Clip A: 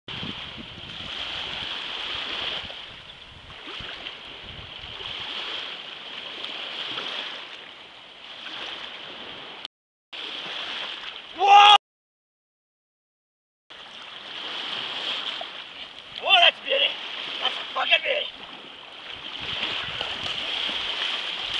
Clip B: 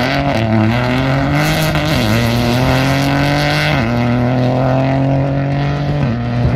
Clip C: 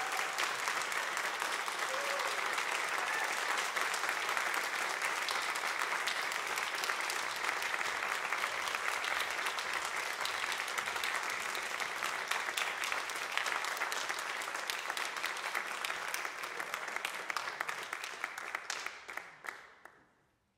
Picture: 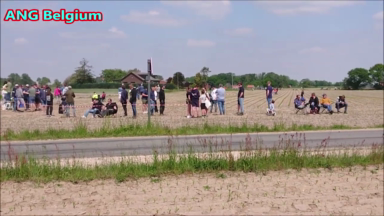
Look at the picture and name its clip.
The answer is B